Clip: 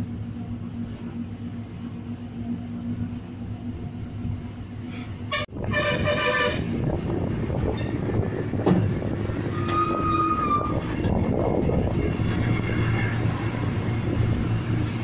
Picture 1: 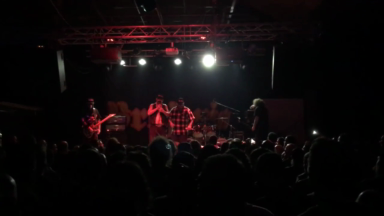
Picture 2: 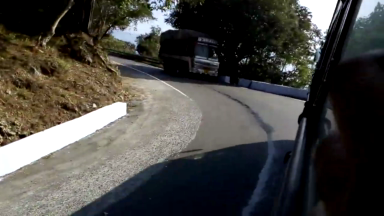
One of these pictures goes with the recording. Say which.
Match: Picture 2